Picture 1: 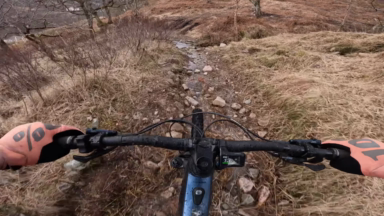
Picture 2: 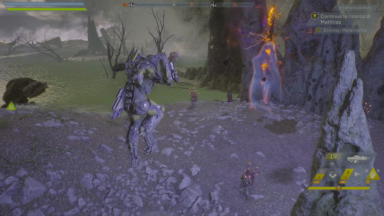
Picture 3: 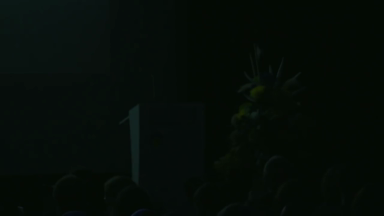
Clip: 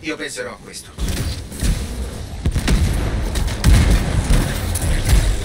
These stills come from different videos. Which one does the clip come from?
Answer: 2